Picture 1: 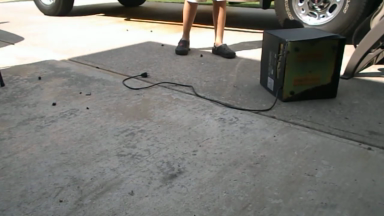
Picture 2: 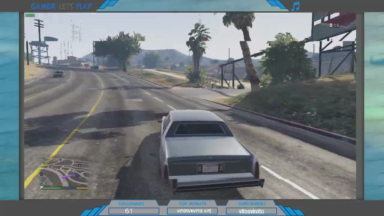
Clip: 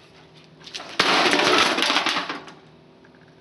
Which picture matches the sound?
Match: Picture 1